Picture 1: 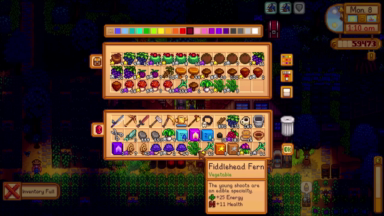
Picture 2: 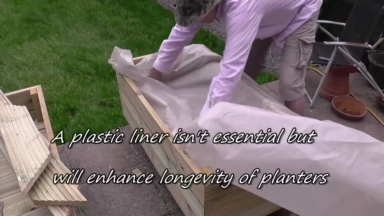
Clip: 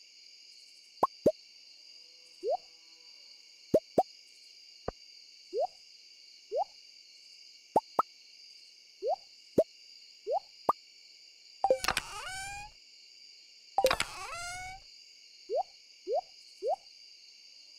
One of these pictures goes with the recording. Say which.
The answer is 1